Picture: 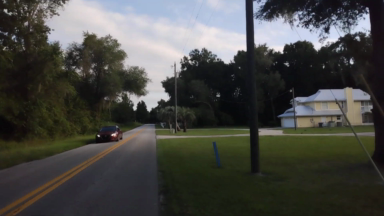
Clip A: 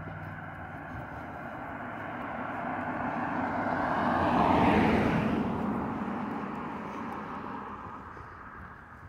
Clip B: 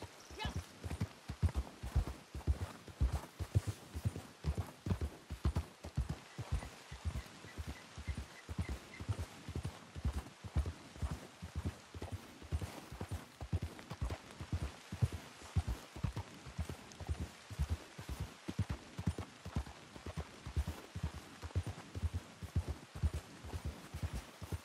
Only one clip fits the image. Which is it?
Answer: A